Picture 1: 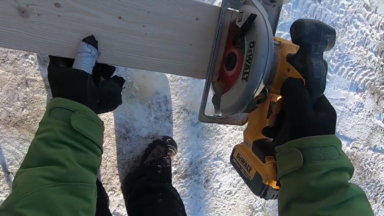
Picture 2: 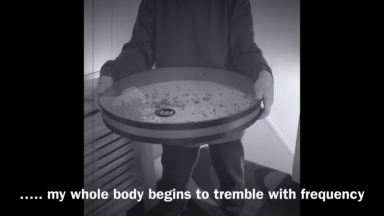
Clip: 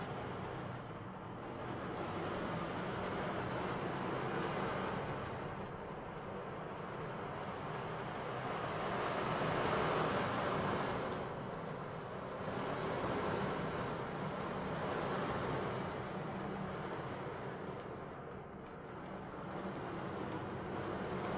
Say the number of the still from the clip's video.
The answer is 2